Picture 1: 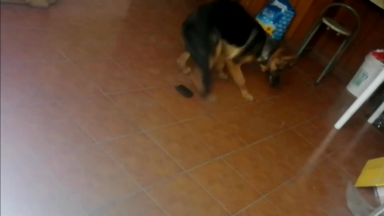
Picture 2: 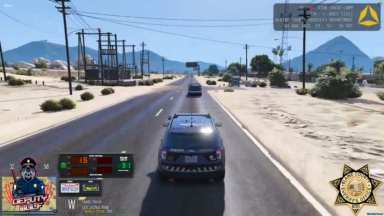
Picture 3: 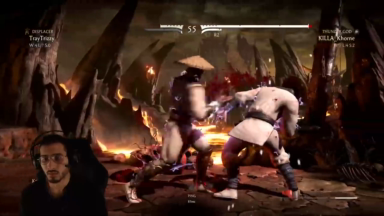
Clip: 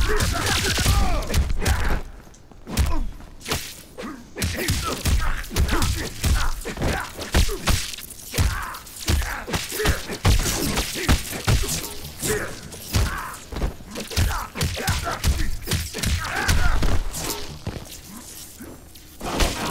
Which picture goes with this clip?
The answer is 3